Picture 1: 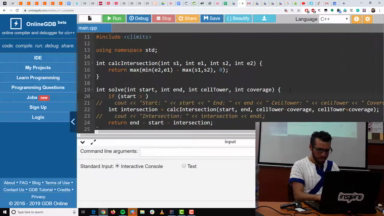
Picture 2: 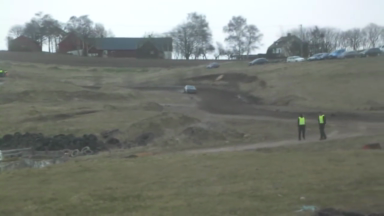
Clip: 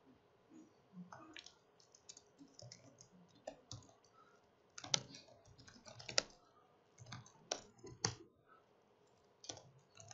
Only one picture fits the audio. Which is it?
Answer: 1